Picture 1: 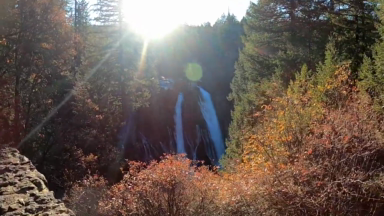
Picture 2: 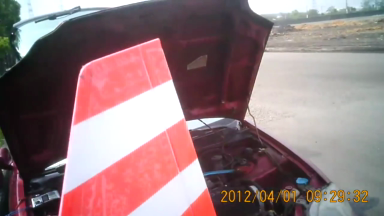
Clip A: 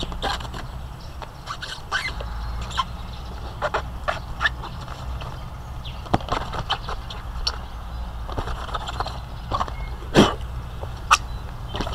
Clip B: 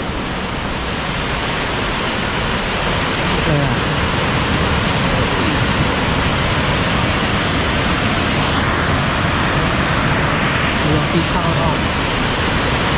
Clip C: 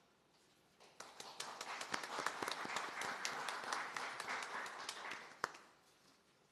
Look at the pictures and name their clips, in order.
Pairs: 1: B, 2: A